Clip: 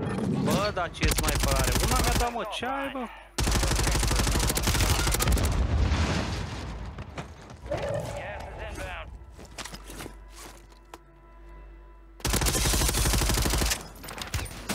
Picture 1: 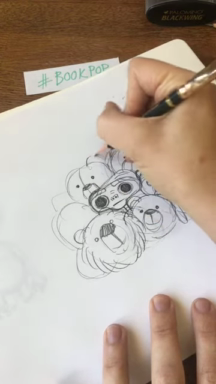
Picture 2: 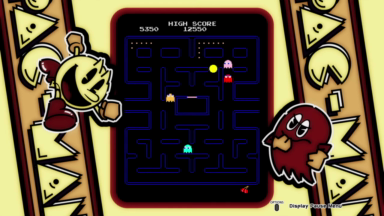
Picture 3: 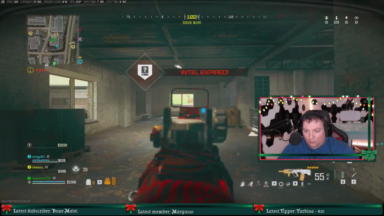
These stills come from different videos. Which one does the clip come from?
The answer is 3